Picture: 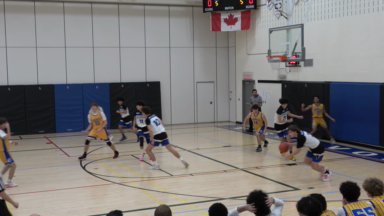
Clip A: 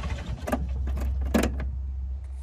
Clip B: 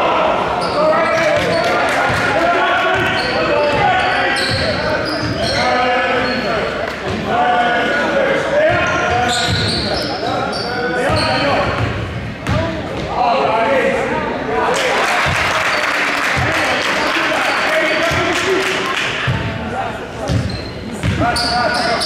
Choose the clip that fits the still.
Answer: B